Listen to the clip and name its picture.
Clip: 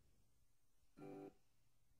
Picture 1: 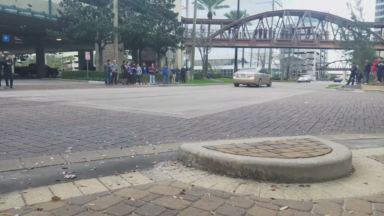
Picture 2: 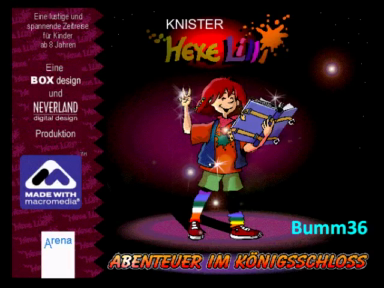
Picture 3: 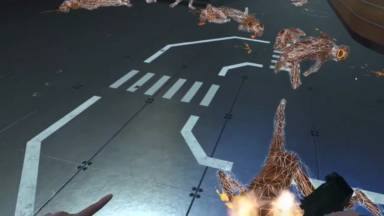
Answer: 2